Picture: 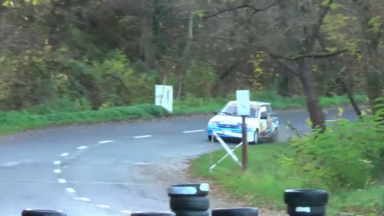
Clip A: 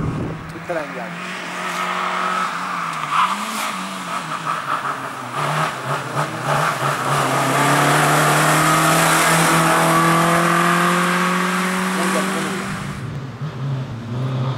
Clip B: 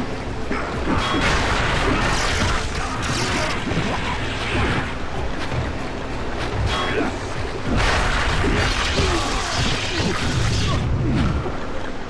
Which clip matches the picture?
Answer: A